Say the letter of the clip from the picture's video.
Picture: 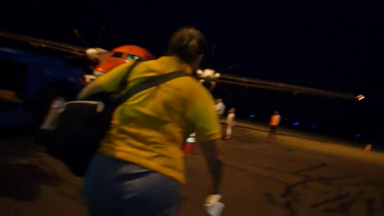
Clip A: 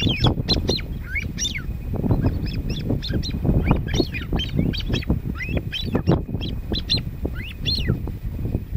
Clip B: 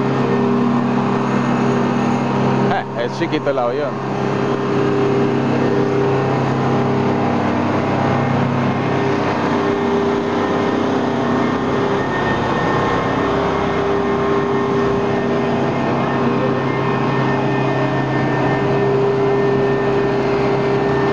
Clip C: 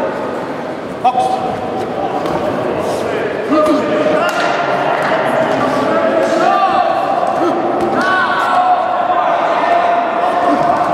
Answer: B